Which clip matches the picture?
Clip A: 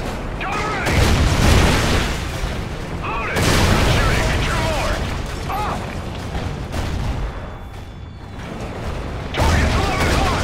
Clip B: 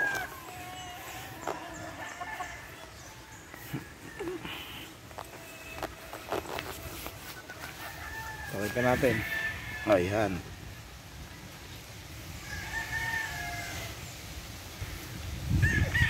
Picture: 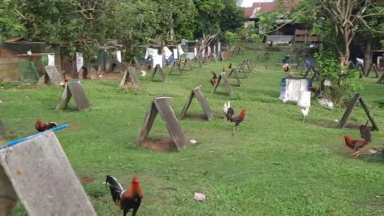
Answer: B